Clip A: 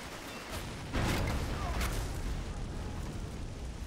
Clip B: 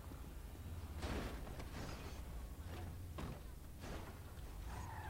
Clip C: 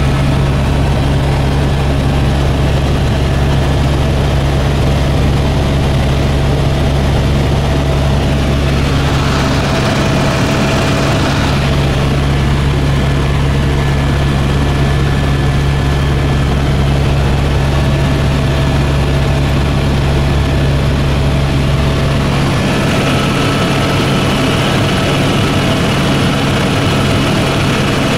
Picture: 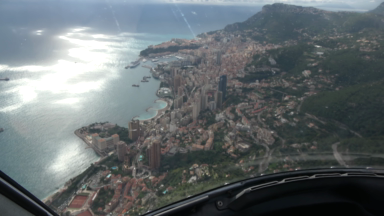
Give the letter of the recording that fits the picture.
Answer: C